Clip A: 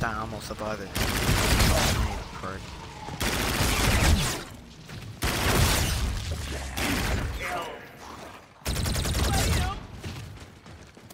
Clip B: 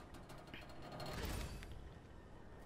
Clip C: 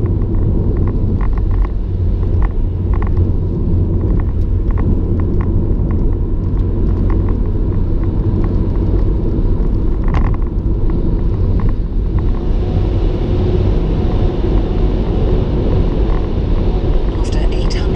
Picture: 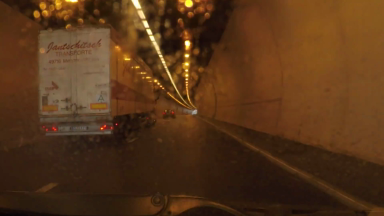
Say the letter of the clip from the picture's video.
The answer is C